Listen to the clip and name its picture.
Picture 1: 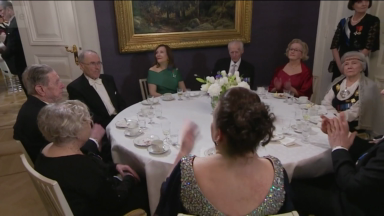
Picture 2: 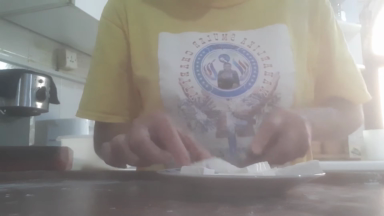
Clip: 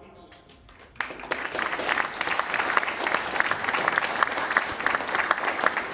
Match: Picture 1